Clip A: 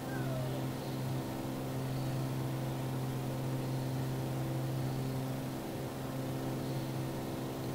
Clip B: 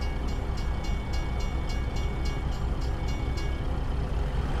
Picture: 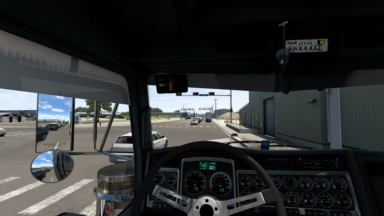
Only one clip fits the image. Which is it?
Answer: B